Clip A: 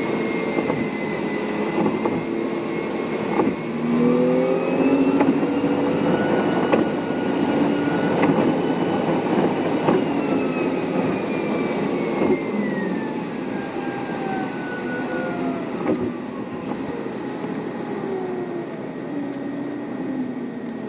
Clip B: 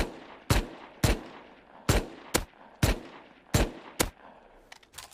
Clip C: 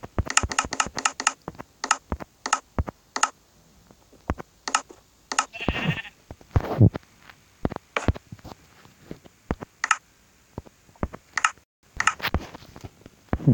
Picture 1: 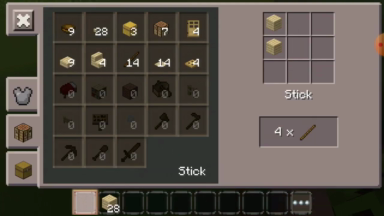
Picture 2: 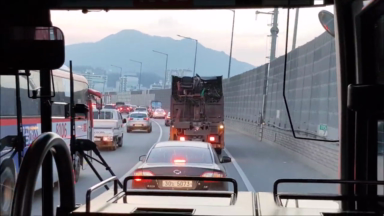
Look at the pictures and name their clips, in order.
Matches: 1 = C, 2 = A